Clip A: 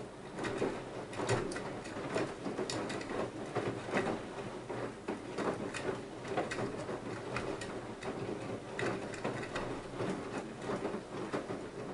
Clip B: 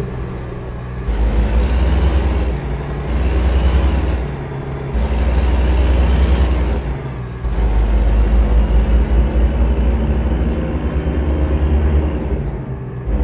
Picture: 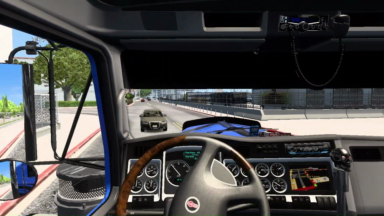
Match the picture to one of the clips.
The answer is B